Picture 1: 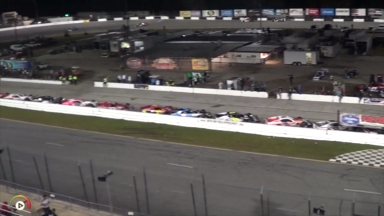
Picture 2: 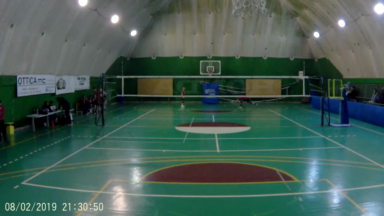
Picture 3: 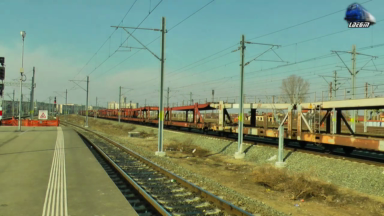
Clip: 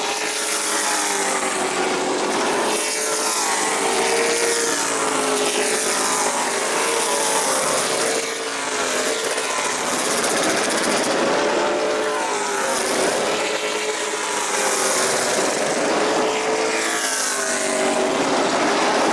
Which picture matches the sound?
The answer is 1